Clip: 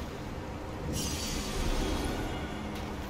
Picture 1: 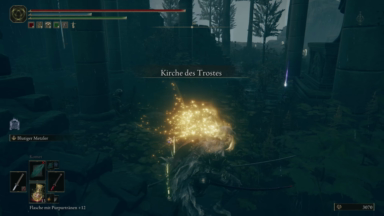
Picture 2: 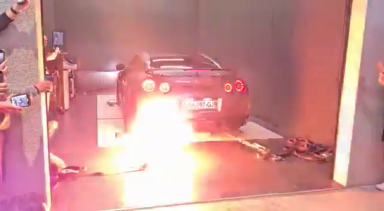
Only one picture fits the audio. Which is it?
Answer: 1